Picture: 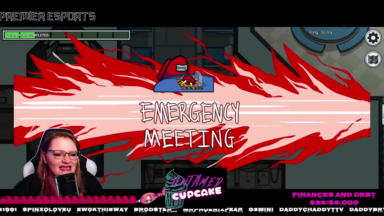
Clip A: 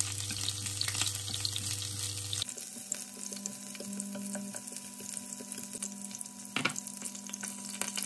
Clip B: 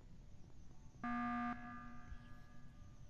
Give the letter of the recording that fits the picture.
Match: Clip B